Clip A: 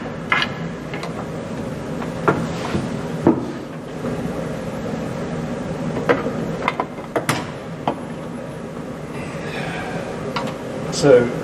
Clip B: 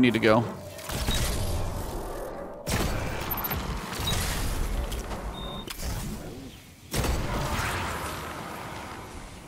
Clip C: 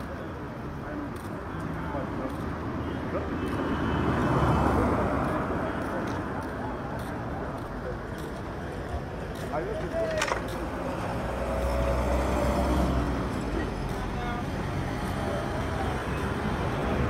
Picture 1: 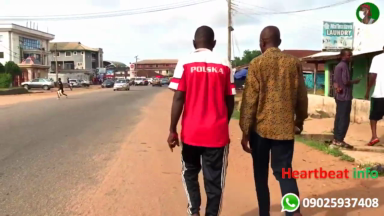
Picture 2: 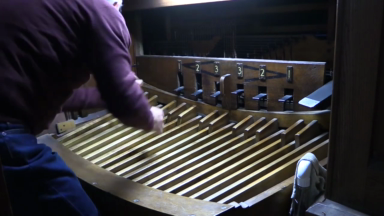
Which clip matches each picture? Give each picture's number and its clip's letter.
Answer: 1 C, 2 A